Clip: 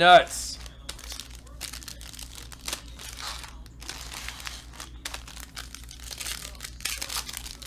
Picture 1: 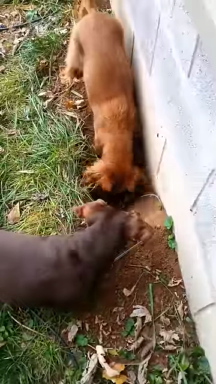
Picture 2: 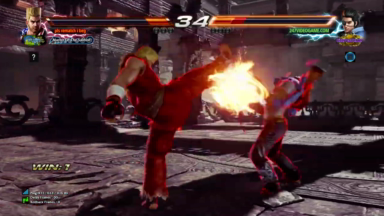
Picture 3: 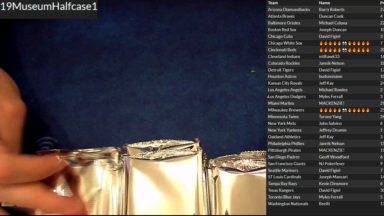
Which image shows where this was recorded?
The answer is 3